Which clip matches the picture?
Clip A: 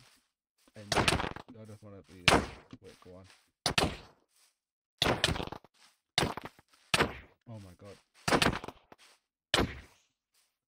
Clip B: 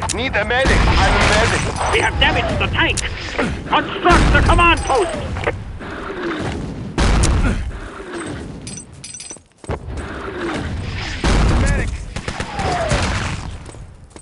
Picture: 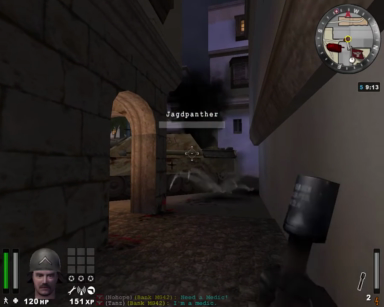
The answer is B